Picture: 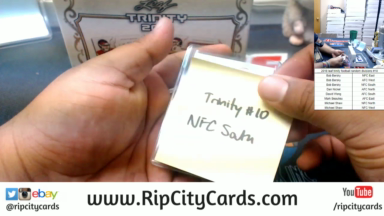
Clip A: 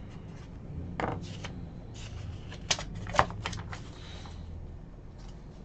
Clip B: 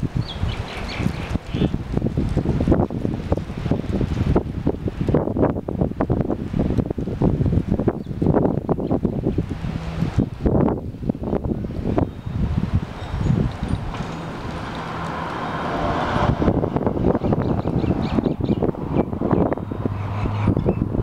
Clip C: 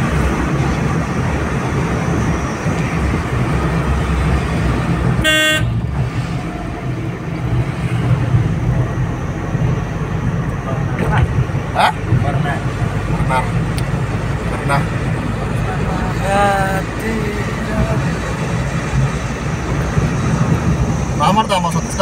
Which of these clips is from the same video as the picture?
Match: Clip A